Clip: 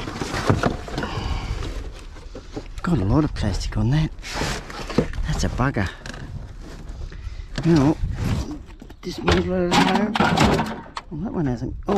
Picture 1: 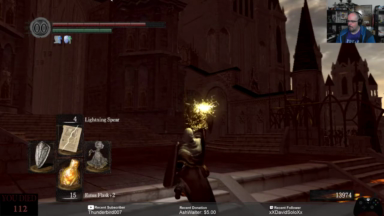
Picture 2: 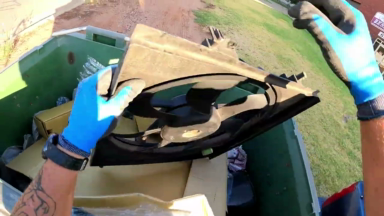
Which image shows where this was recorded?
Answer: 2